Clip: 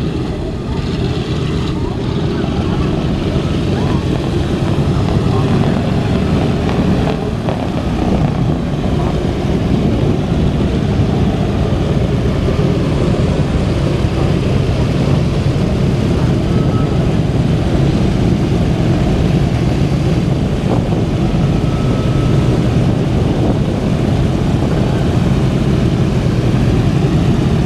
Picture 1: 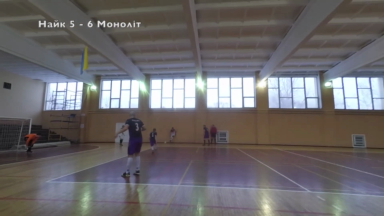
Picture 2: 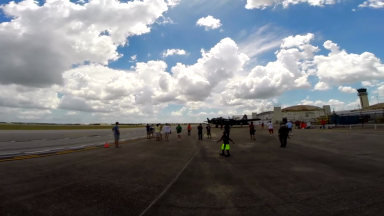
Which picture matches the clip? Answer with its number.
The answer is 2